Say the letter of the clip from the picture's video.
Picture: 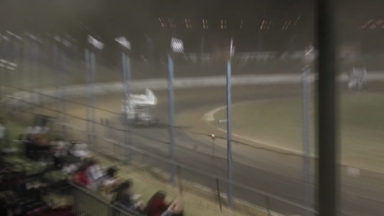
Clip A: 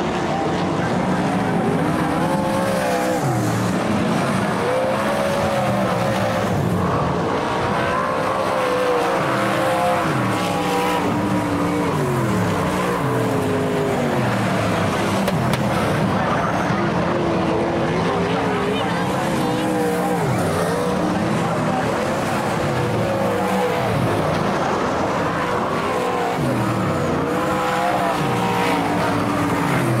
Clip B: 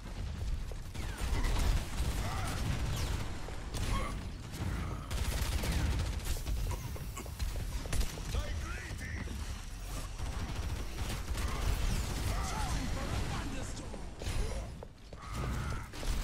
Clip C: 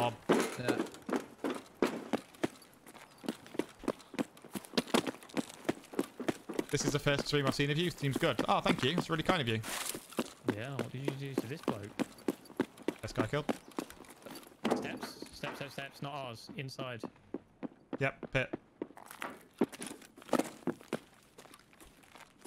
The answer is A